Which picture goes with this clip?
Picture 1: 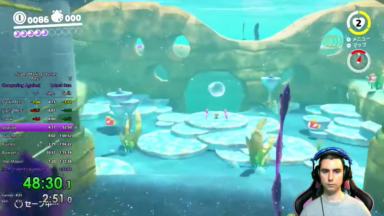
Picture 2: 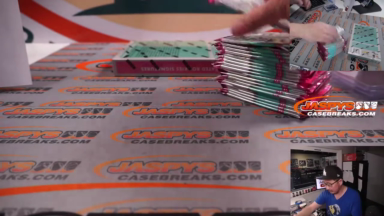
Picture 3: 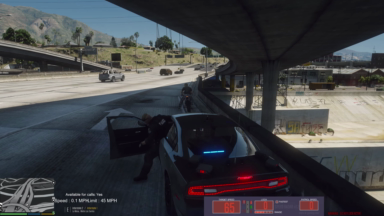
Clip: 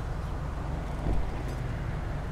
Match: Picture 3